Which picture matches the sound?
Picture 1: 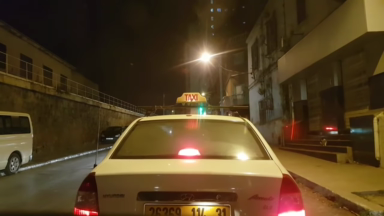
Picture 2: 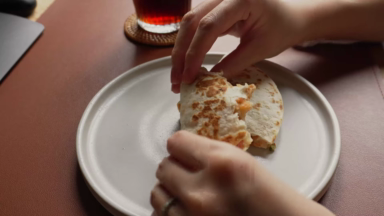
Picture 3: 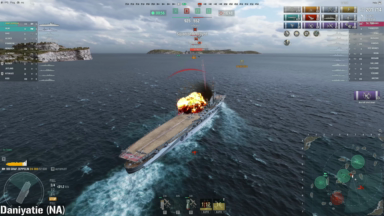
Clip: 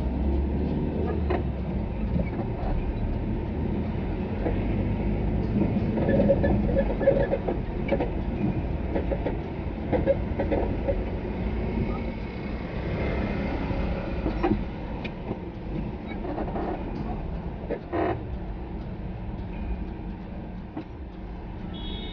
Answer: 1